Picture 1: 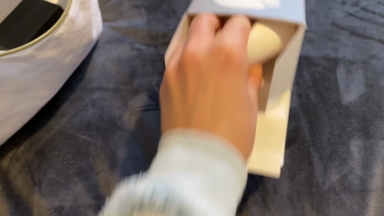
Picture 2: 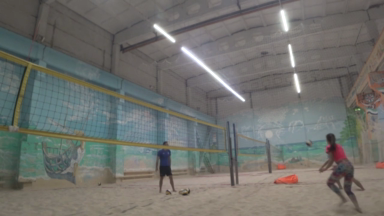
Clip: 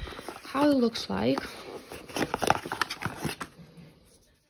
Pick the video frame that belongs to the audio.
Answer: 1